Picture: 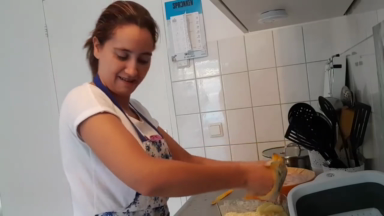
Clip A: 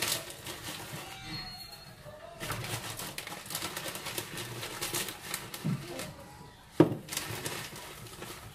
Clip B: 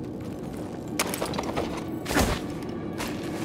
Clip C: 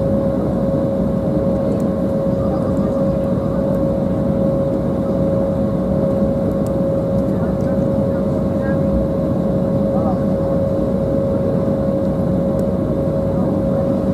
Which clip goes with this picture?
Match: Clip A